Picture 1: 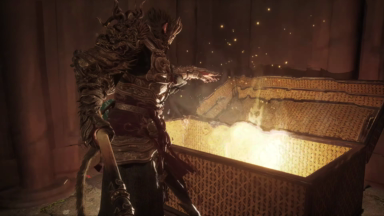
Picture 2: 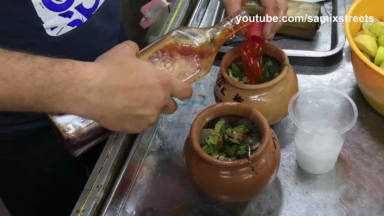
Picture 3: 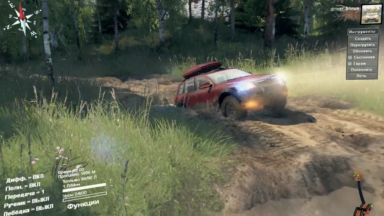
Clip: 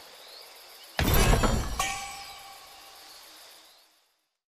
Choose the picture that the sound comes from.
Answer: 1